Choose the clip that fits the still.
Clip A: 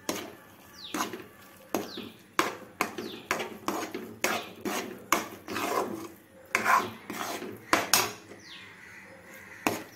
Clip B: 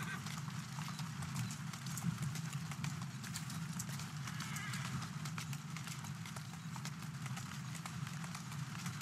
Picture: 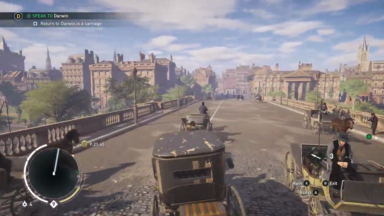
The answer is B